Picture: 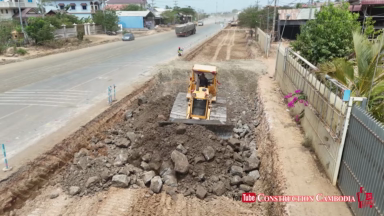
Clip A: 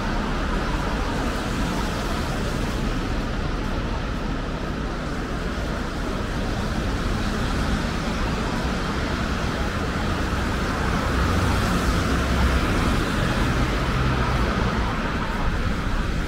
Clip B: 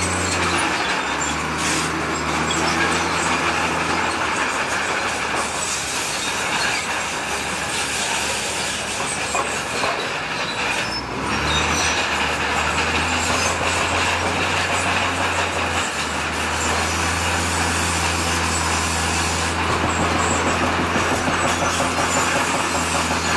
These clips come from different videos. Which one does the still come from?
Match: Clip B